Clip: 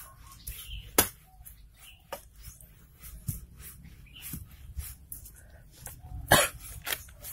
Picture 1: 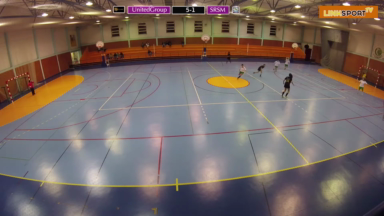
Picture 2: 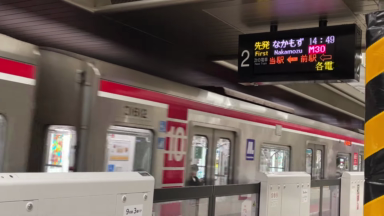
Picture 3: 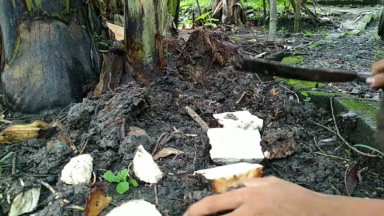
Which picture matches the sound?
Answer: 3